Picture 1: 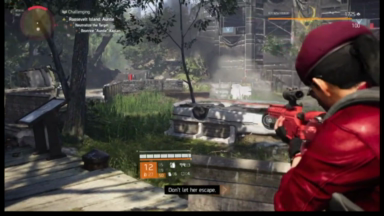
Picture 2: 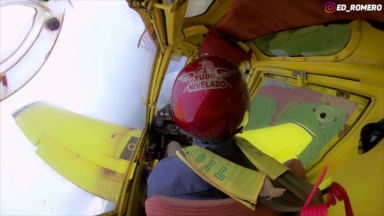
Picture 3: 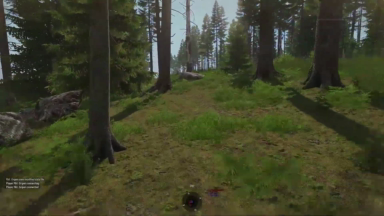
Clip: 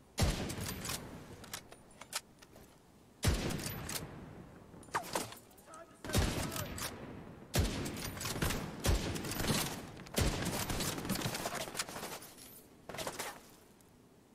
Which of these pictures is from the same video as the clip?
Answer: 1